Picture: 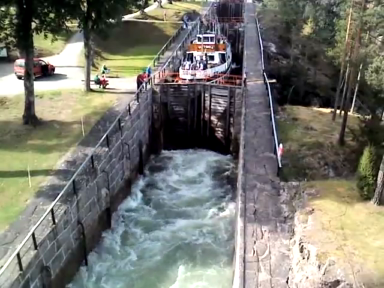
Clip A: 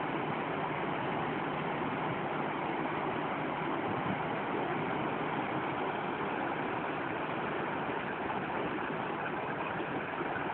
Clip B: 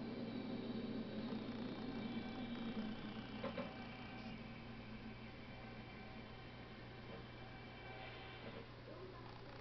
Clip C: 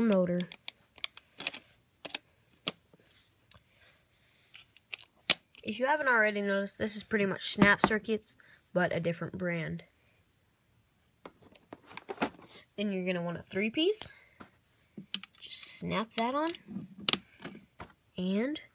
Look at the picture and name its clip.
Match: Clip A